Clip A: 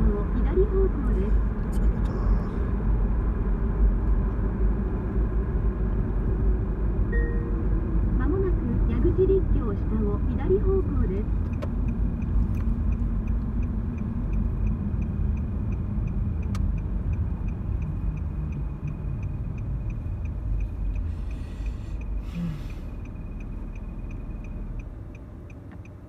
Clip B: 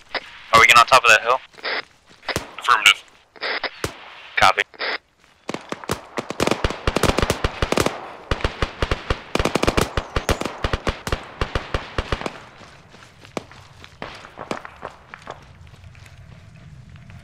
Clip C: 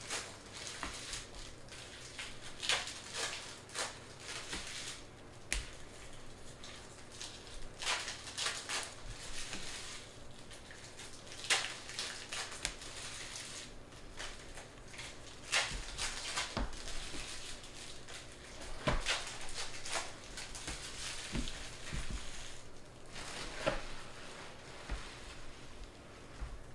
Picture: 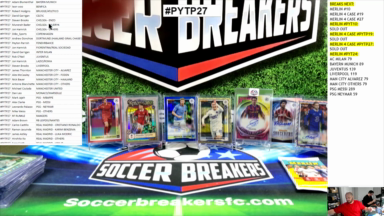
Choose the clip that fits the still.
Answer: C